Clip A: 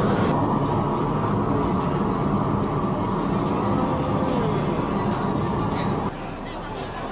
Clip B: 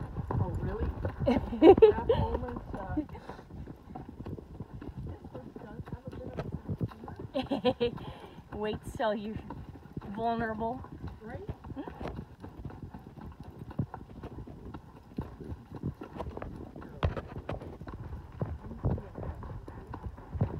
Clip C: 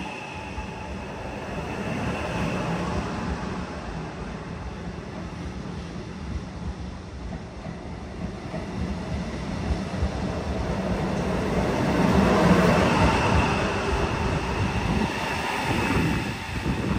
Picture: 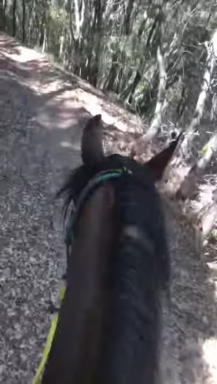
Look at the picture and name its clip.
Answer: B